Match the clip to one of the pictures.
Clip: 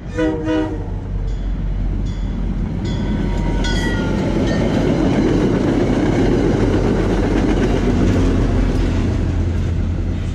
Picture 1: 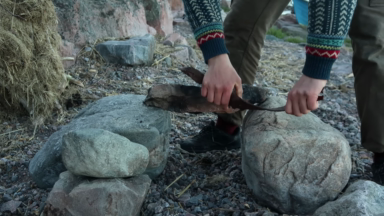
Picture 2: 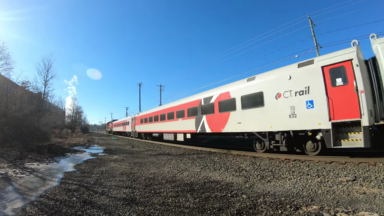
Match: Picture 2